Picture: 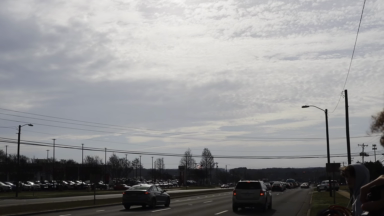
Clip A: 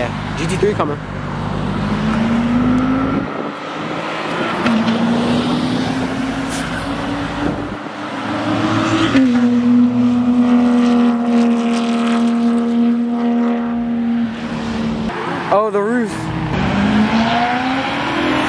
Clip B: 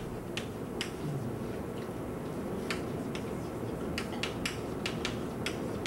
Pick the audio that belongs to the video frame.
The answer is A